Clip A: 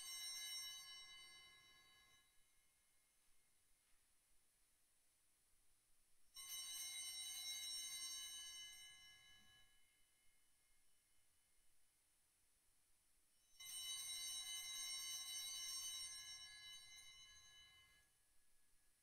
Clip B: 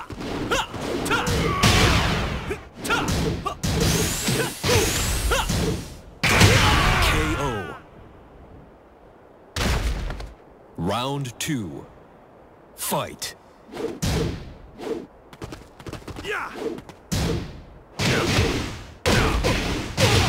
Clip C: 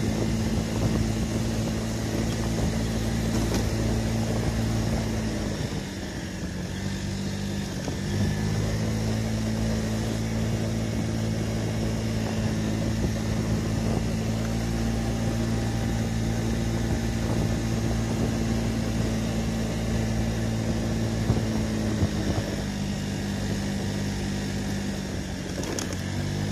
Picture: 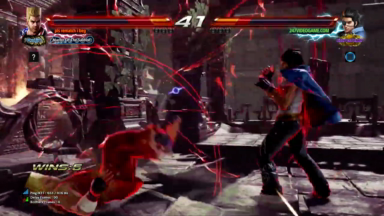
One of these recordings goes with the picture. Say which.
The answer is B